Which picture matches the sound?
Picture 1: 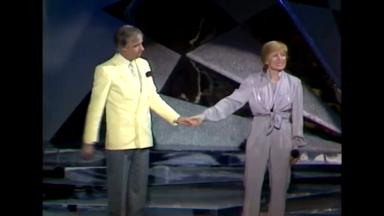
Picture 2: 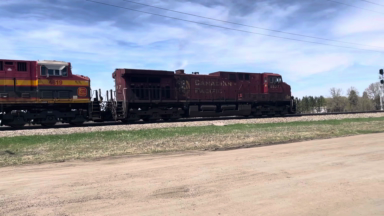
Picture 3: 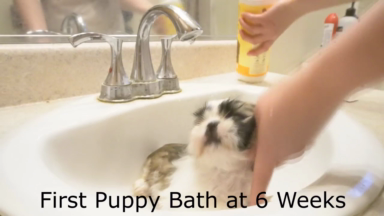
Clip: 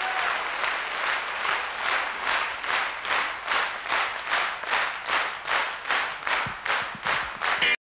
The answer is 1